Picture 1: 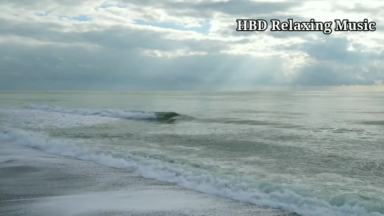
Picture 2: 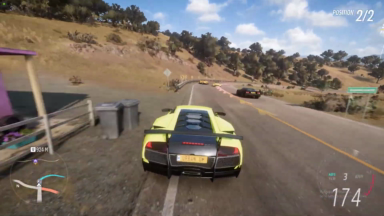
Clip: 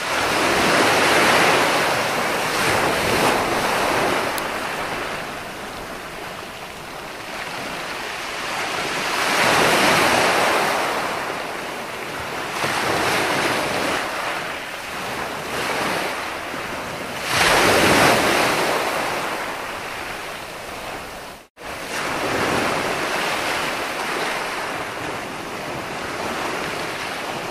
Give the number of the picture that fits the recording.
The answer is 1